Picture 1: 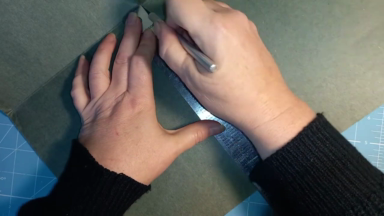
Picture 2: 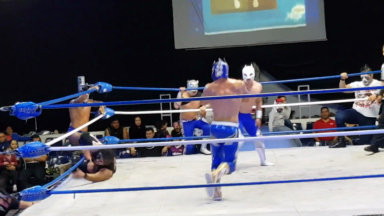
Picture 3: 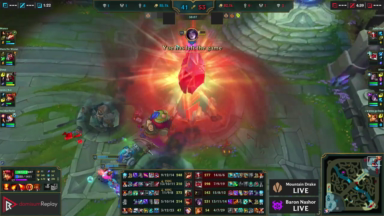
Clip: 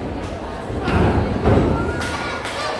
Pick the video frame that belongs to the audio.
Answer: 2